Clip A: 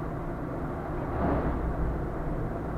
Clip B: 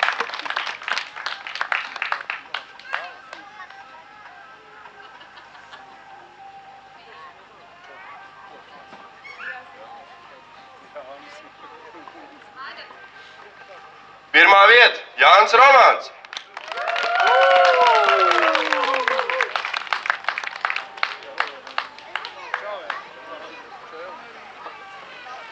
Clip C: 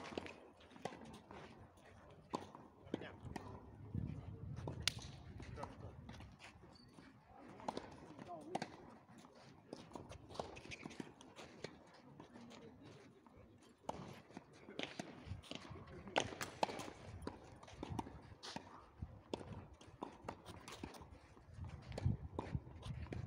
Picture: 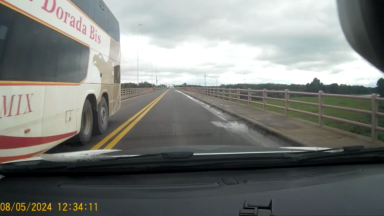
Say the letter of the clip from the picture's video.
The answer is A